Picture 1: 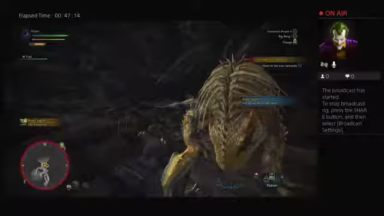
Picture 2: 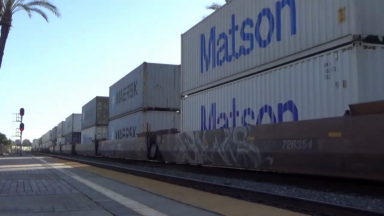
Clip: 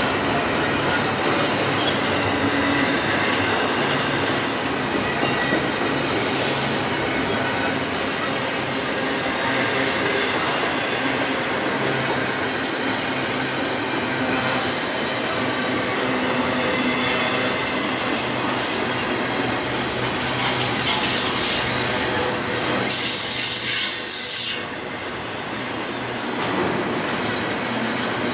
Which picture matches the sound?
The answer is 2